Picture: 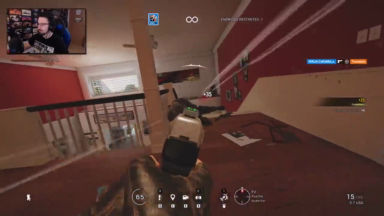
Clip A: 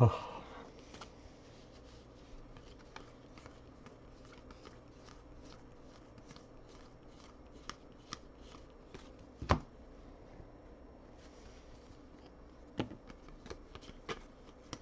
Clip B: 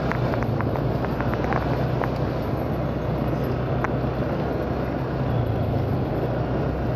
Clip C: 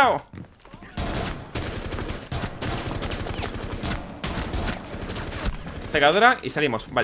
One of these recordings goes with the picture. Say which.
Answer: C